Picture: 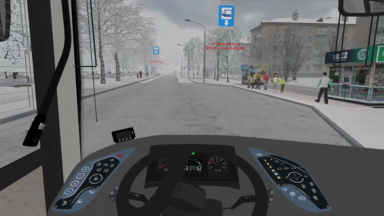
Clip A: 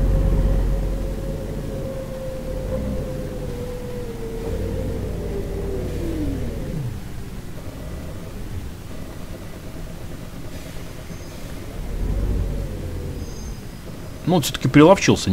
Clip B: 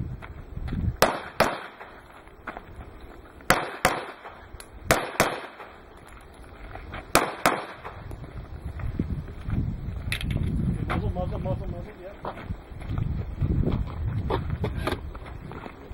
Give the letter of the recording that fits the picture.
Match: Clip A